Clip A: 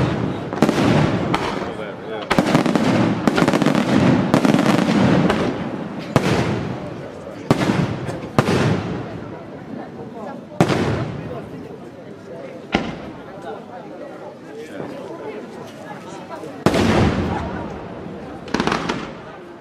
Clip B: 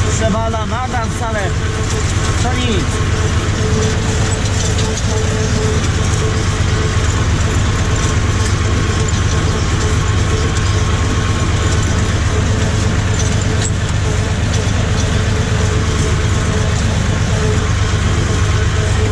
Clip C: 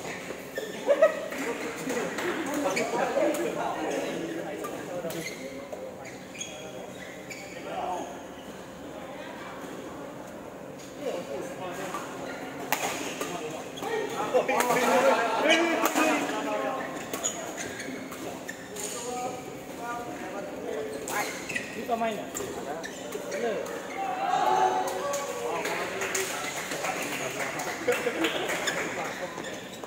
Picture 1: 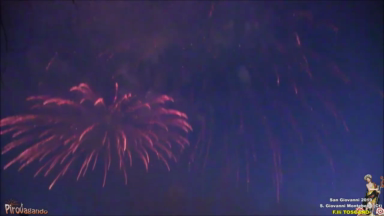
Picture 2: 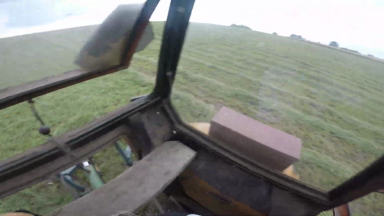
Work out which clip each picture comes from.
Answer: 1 A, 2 B